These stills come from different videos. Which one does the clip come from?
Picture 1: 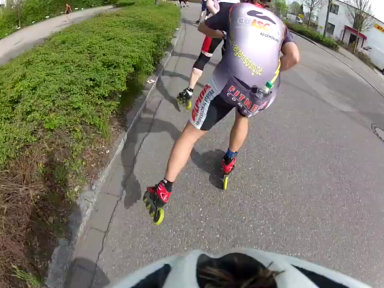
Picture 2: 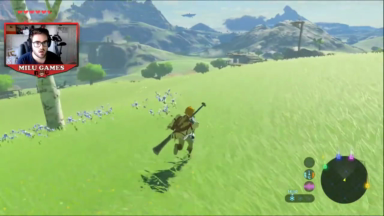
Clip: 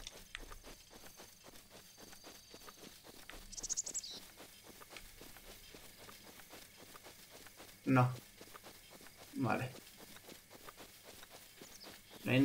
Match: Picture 2